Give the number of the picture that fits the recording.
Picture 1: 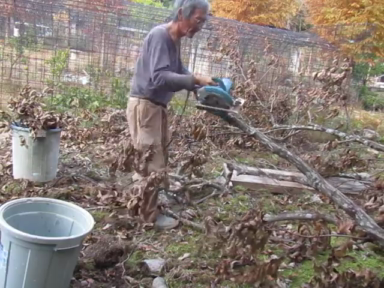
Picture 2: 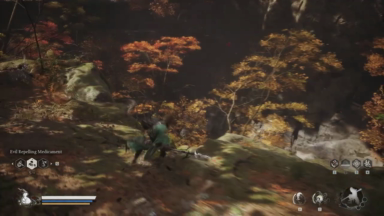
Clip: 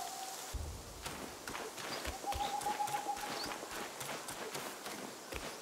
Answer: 2